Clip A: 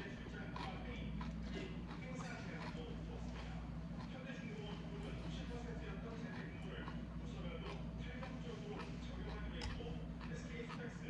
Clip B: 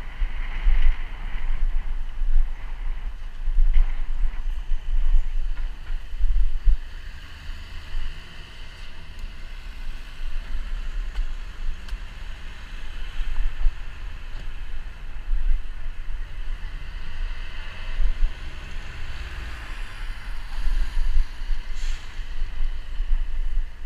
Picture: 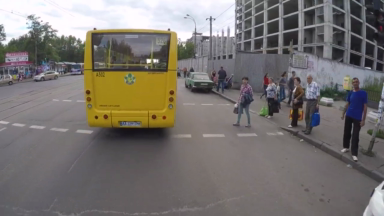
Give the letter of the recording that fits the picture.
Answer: B